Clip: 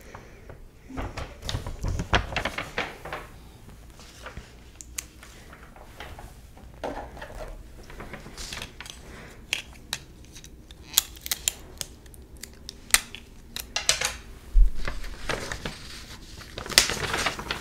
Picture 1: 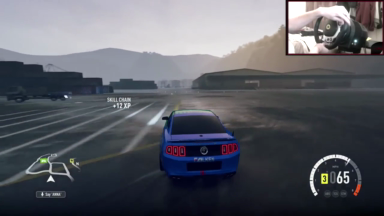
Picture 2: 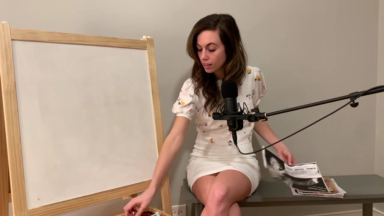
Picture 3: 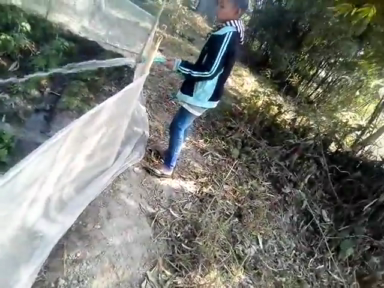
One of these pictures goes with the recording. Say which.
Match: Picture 2